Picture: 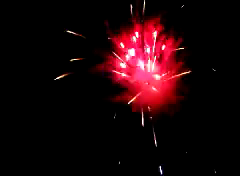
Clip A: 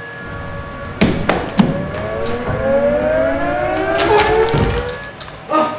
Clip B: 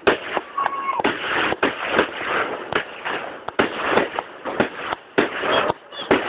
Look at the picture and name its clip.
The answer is B